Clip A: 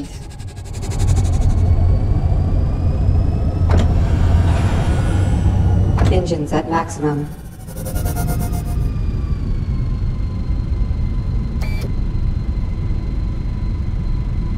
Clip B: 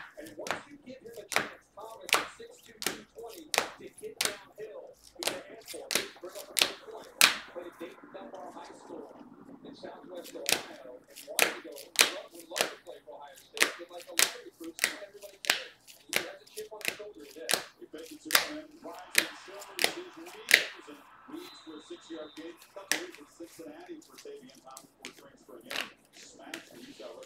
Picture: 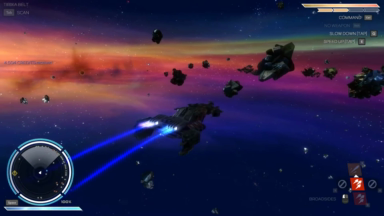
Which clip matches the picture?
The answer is A